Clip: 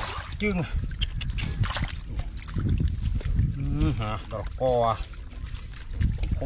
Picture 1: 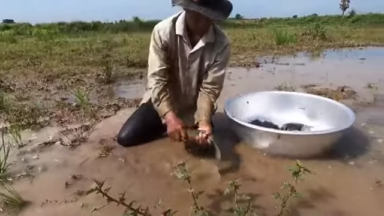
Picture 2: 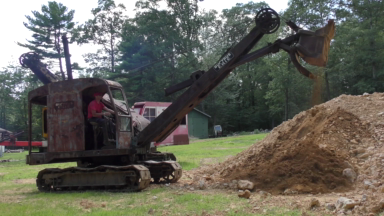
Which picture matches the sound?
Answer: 1